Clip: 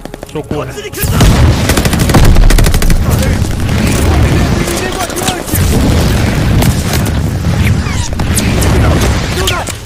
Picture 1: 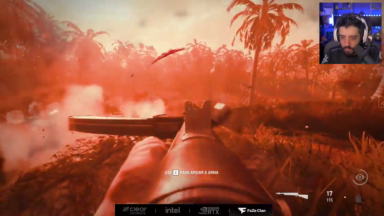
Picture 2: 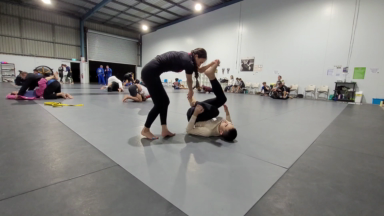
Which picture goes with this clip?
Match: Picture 1